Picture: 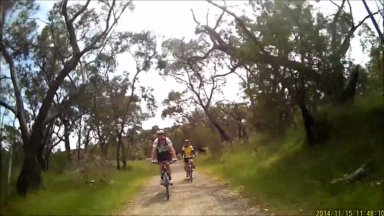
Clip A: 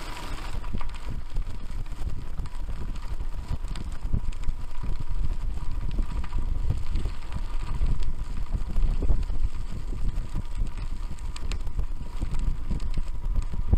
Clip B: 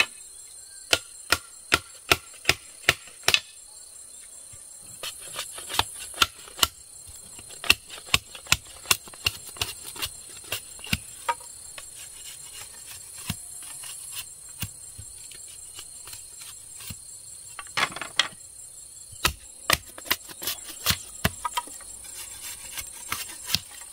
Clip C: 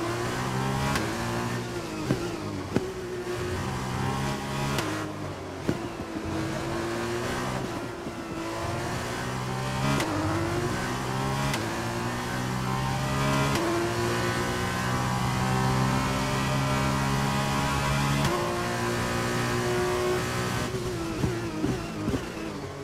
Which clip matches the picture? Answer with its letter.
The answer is A